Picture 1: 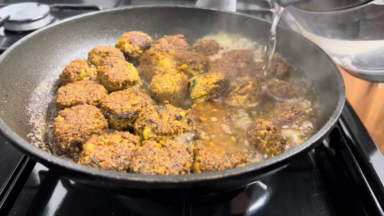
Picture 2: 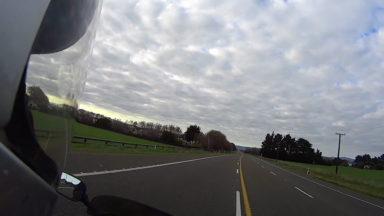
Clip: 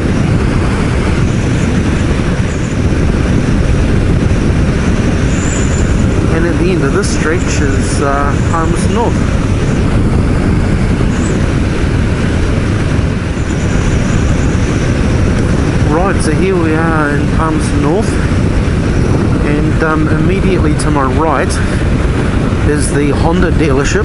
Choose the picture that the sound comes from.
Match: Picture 2